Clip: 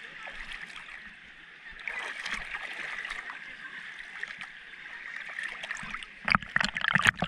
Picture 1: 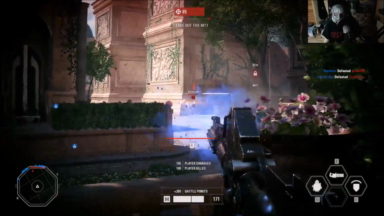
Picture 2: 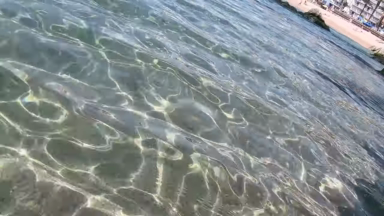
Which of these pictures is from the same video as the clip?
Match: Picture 2